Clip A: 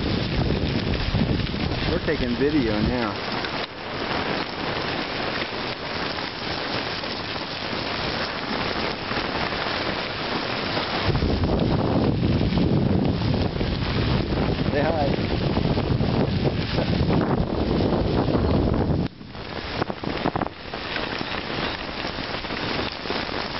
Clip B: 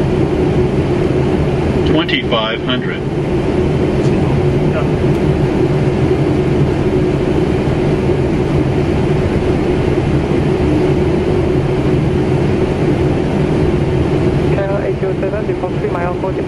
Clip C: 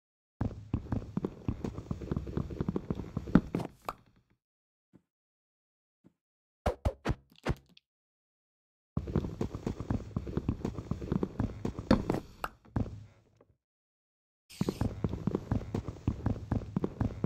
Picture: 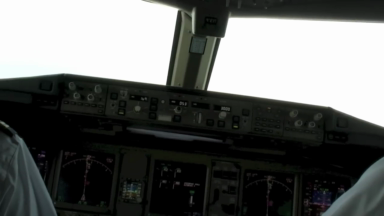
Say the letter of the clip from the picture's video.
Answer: B